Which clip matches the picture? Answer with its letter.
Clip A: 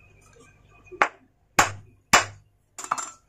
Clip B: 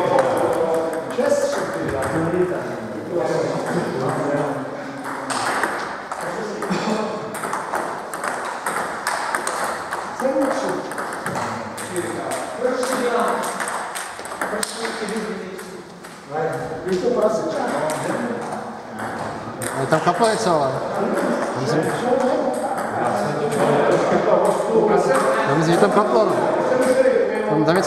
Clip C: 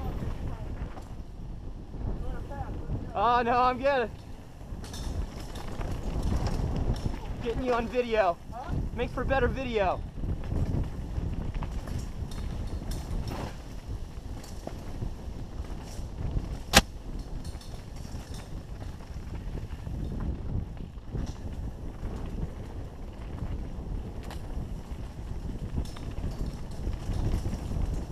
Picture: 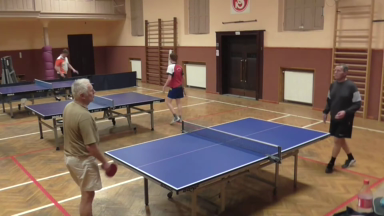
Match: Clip B